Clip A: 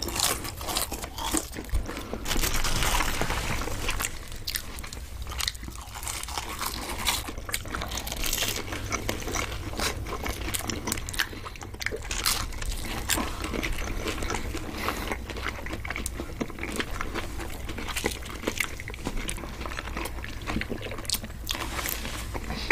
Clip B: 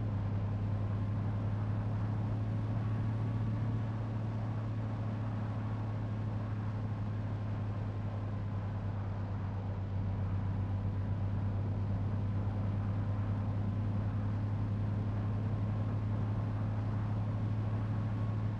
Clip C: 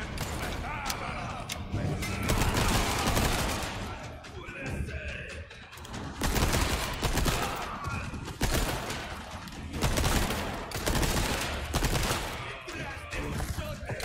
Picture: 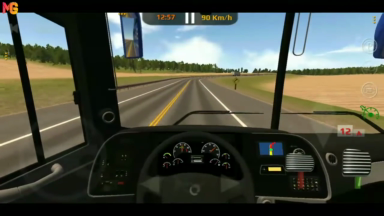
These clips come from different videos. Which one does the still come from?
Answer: B